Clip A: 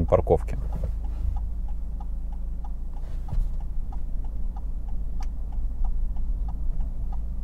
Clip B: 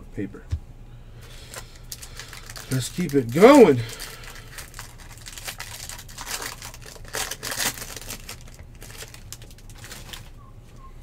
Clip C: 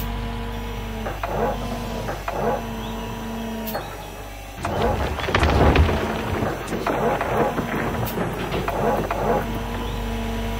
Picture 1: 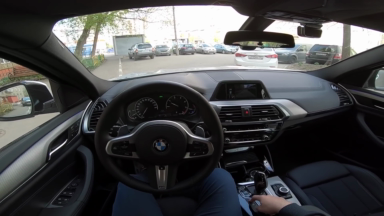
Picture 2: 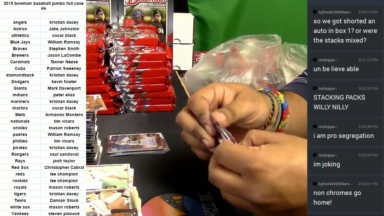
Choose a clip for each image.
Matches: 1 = A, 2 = B